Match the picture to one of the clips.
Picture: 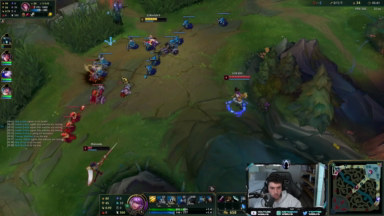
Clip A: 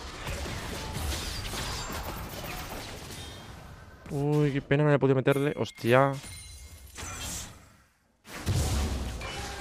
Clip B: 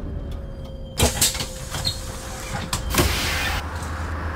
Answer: A